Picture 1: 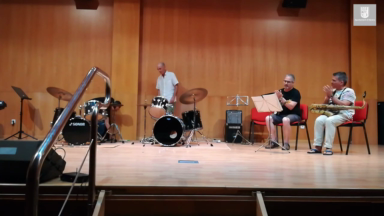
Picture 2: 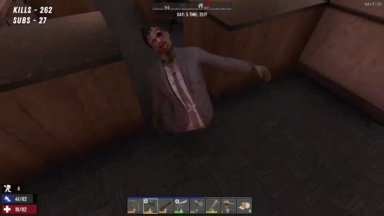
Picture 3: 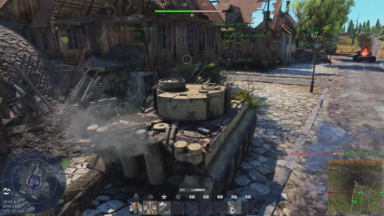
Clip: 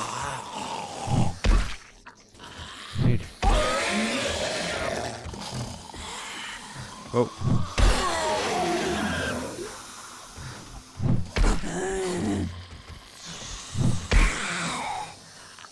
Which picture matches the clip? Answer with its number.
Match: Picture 2